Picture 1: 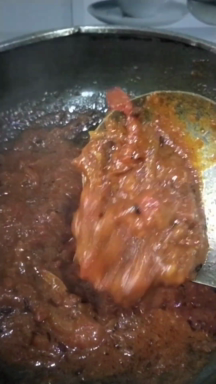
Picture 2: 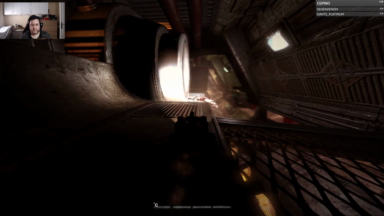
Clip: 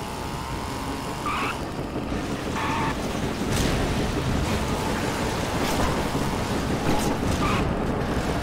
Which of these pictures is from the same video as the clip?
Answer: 2